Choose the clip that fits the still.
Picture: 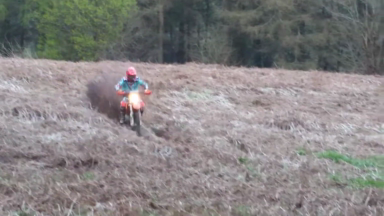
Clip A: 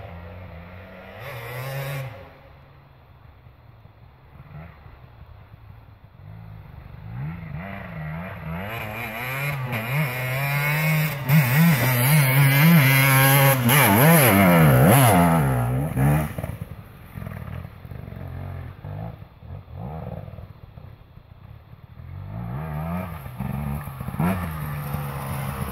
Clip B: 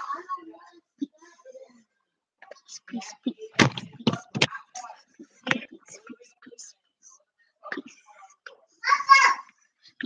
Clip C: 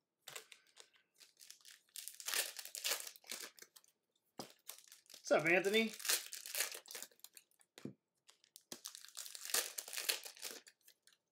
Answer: A